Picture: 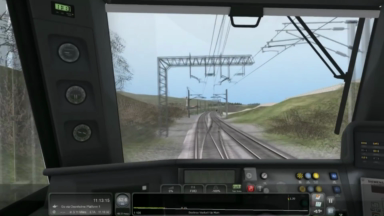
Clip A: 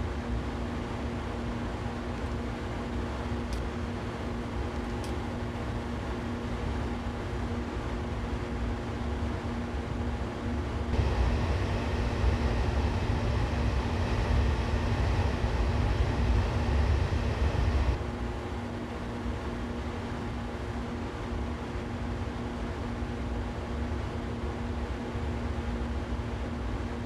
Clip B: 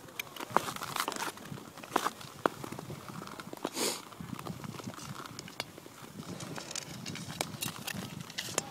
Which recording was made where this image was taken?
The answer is A